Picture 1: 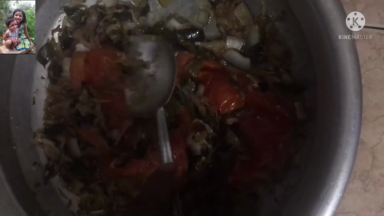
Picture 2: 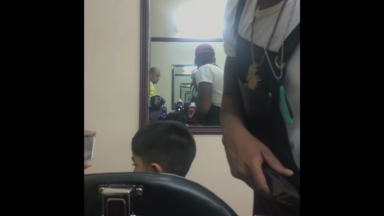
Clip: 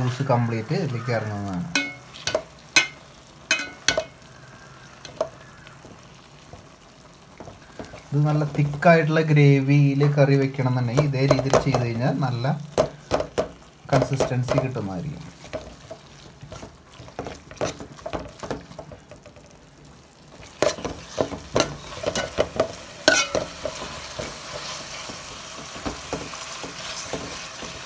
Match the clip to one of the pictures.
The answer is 1